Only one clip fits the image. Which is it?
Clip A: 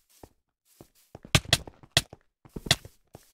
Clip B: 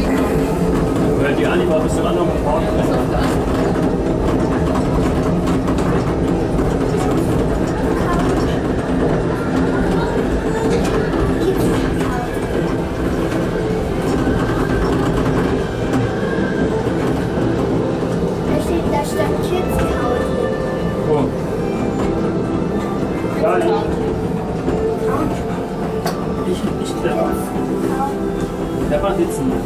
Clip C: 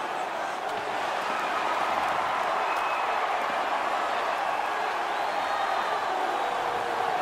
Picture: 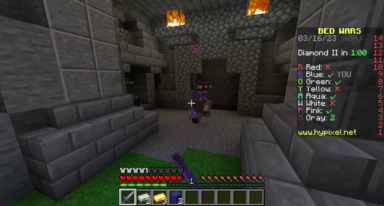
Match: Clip A